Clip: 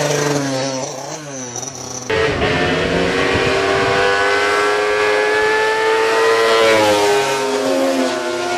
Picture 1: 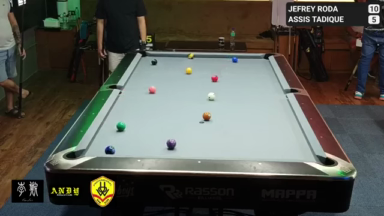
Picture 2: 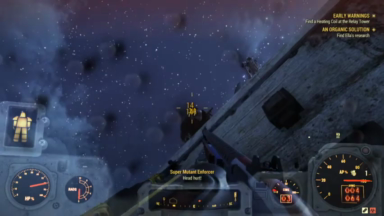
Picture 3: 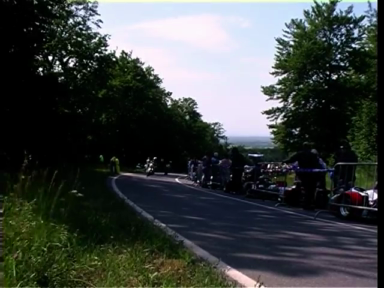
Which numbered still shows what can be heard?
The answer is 3